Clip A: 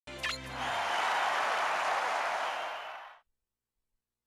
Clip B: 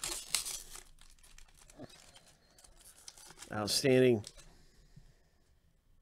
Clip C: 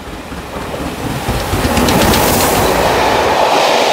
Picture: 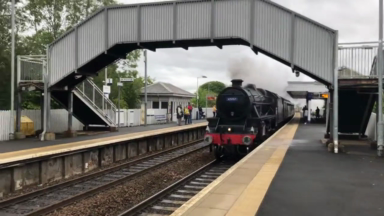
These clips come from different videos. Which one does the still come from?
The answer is C